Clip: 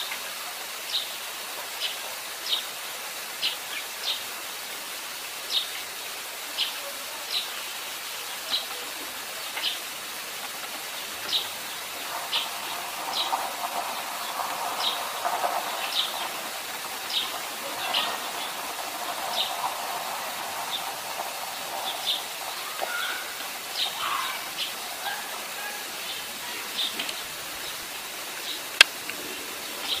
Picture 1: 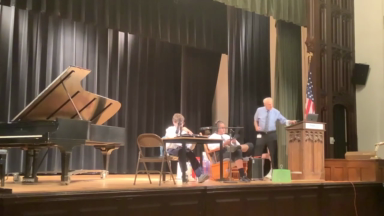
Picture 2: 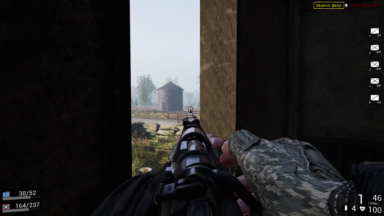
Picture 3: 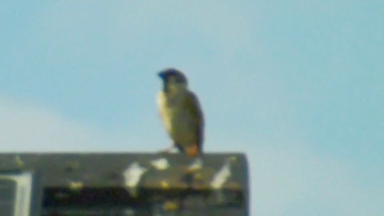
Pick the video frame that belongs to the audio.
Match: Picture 3